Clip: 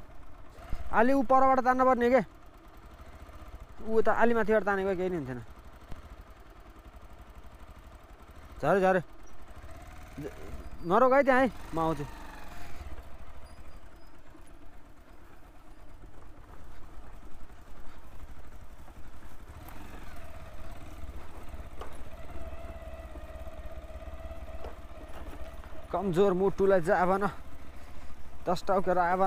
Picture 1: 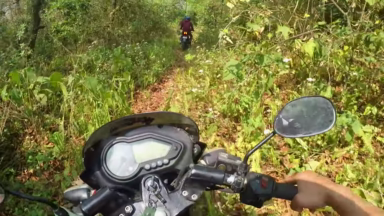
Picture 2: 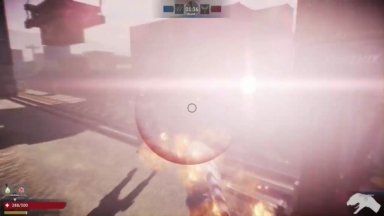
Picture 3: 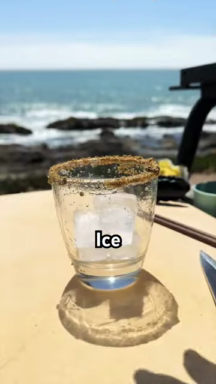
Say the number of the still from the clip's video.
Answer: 1